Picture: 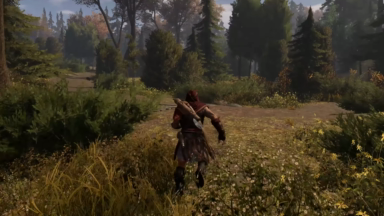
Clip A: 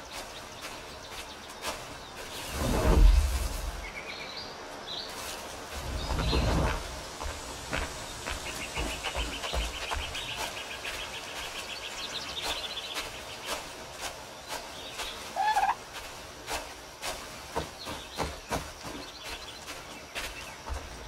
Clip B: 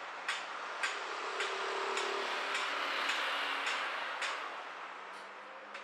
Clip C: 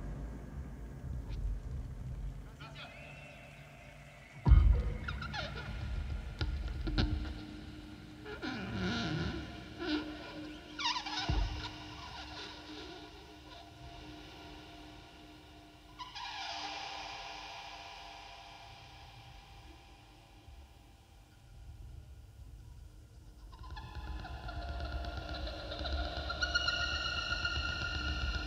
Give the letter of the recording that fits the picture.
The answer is A